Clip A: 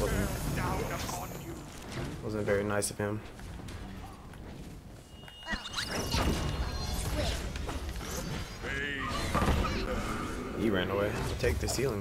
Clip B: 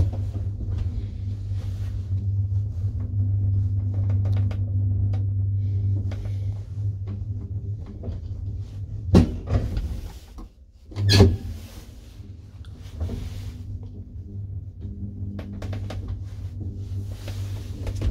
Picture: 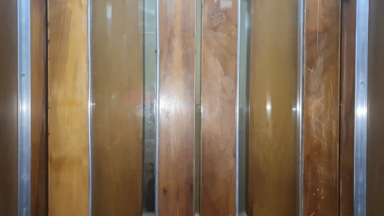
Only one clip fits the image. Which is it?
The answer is B